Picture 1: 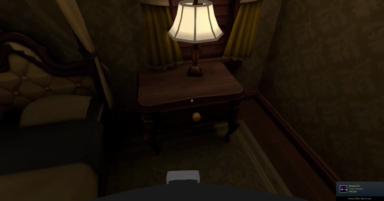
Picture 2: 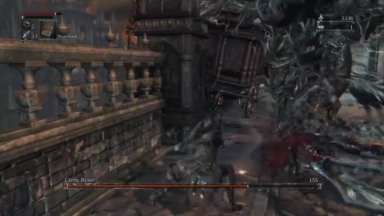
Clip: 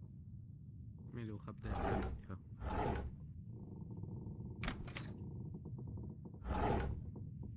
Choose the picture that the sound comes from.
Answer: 1